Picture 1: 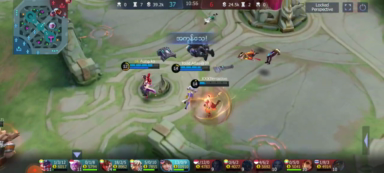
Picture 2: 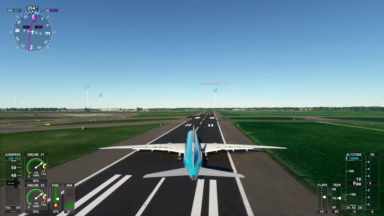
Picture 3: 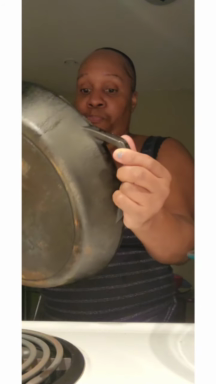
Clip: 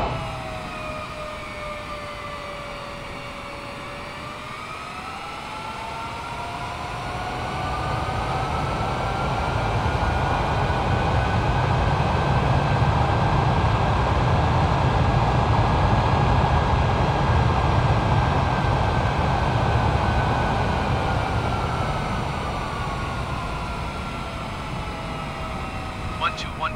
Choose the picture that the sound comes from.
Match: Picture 2